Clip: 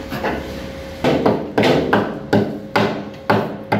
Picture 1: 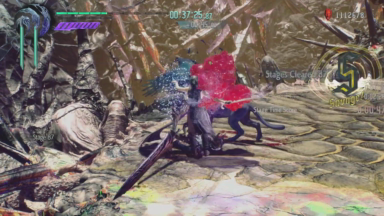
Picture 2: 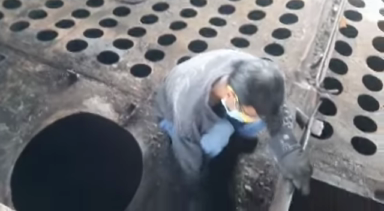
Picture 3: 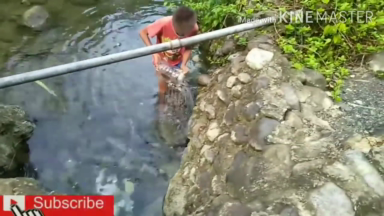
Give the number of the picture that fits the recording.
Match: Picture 2